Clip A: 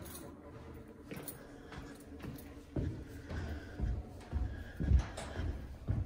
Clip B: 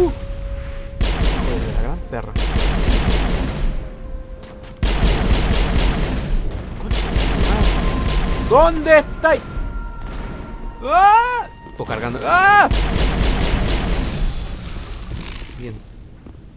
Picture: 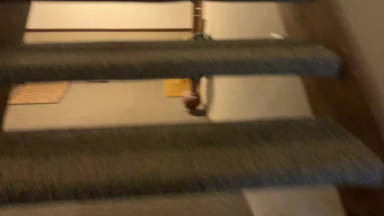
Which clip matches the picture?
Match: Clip A